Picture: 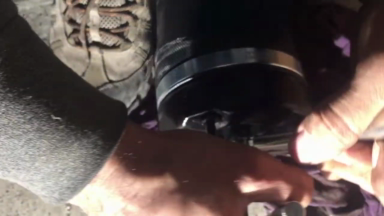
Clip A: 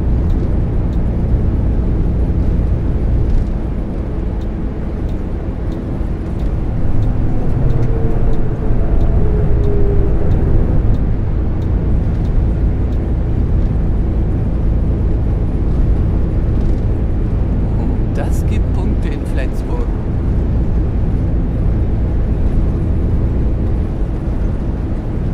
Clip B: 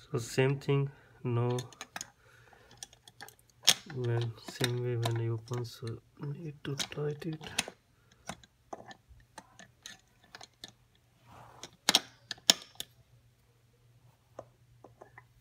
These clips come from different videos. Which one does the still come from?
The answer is B